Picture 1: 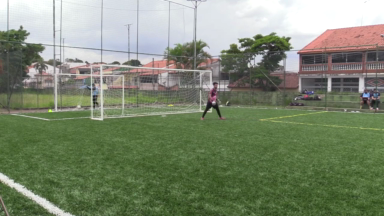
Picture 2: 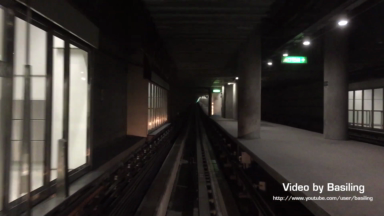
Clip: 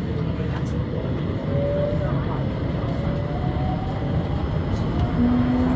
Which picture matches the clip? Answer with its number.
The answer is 2